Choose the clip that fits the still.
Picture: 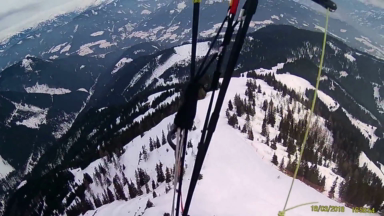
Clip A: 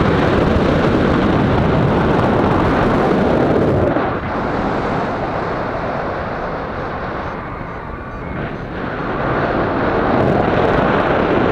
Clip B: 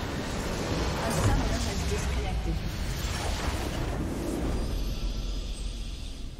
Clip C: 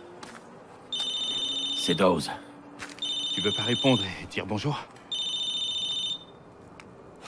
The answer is A